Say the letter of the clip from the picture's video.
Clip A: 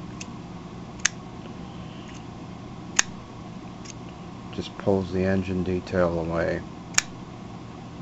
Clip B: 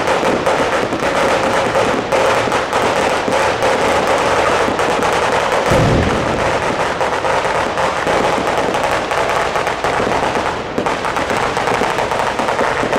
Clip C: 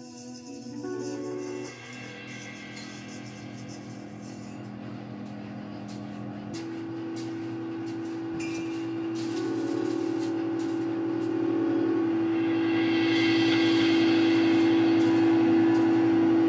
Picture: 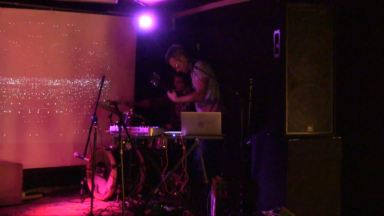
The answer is C